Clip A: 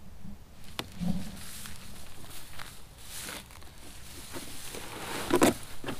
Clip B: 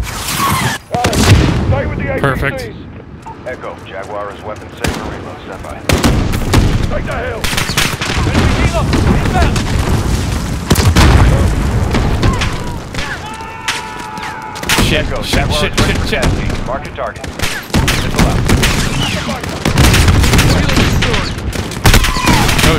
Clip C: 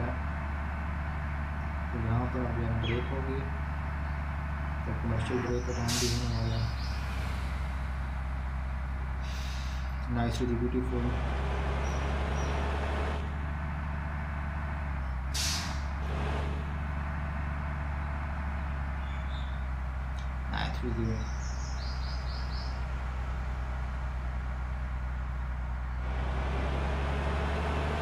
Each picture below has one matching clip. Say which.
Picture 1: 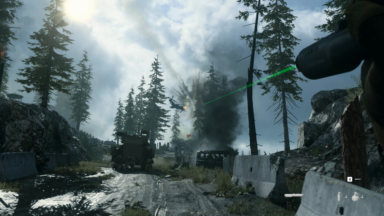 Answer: B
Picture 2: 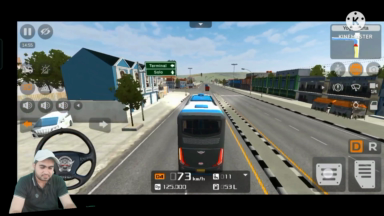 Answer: C